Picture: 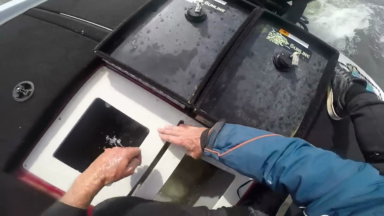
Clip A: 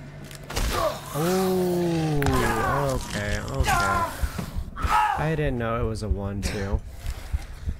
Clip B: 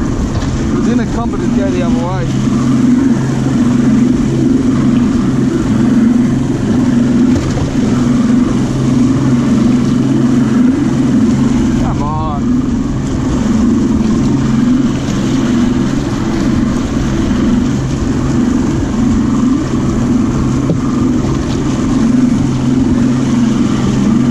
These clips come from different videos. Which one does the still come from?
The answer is B